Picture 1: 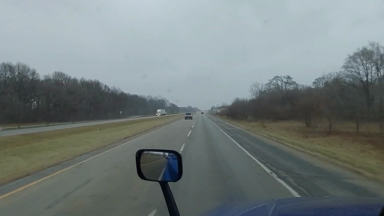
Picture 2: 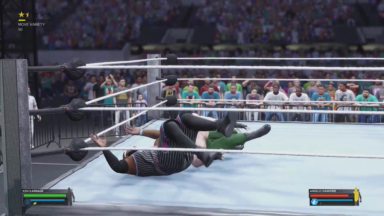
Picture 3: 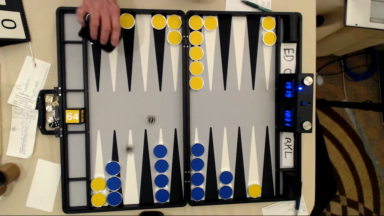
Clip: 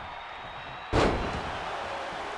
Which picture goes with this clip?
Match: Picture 2